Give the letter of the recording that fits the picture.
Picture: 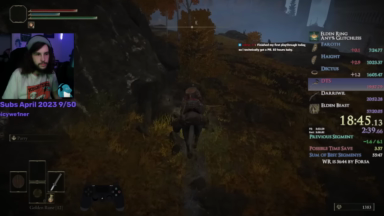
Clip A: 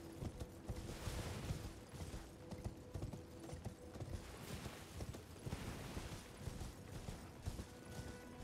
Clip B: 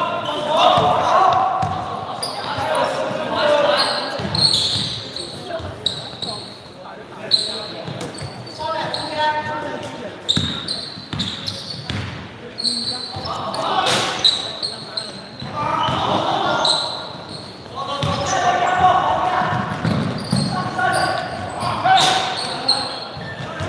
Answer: A